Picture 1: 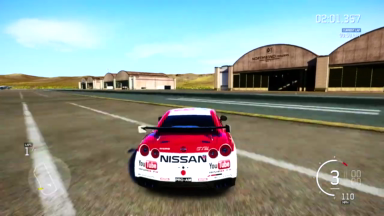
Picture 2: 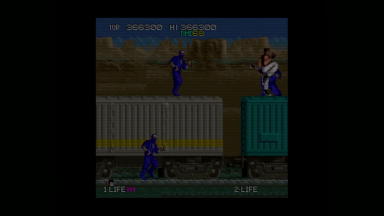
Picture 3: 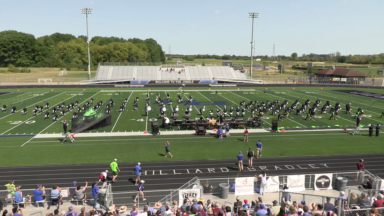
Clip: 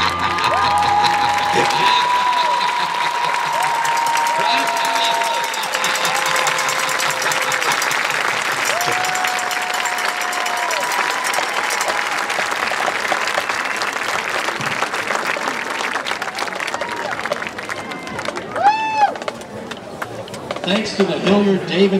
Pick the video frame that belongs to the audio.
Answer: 3